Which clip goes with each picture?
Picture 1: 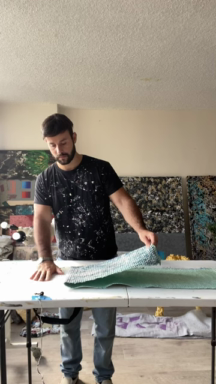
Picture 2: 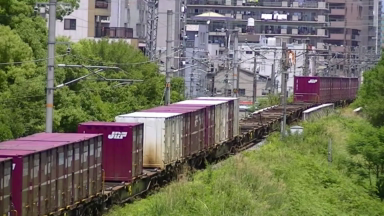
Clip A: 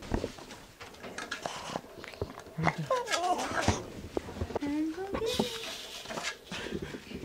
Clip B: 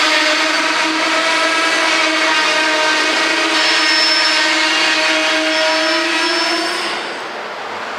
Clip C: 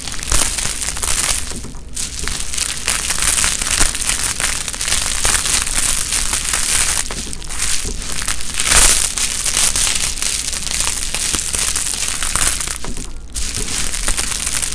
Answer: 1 C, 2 B